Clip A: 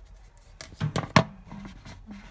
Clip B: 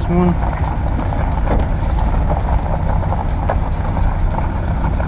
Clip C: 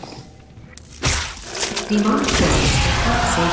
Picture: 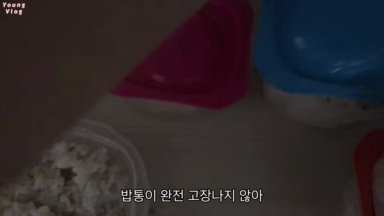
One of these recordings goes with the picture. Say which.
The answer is A